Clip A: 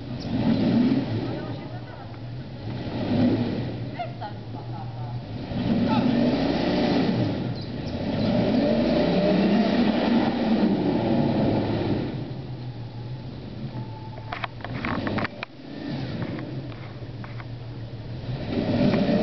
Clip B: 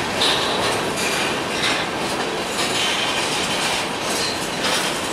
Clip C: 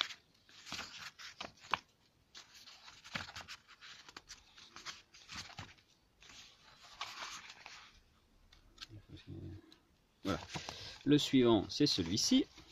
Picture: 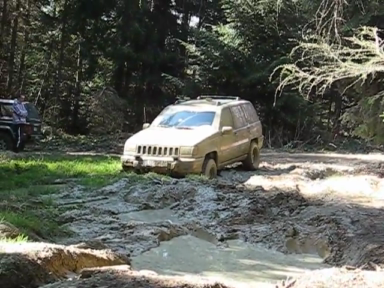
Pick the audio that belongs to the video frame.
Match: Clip A